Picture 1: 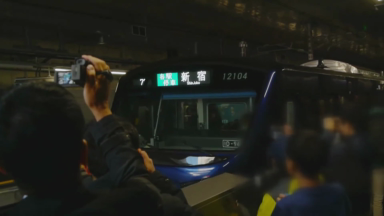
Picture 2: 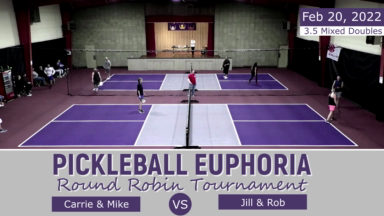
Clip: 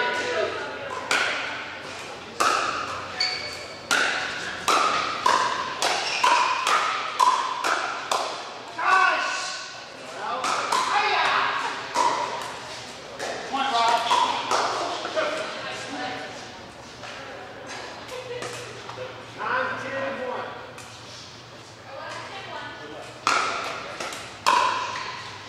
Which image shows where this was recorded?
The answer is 2